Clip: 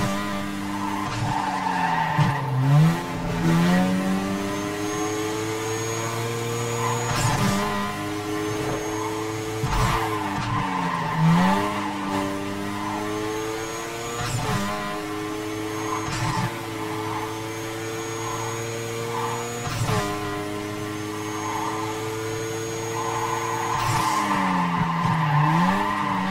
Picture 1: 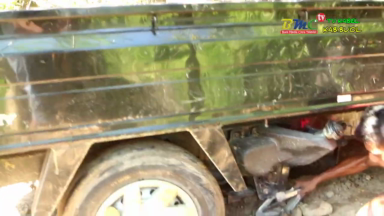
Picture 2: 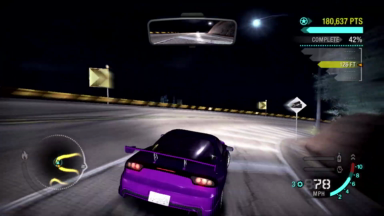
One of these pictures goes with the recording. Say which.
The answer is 2